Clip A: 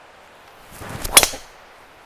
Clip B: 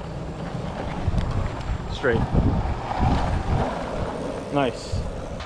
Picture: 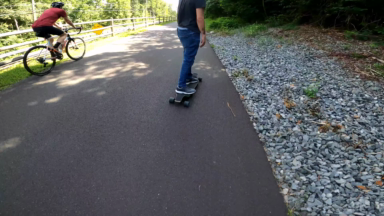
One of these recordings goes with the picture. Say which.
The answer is B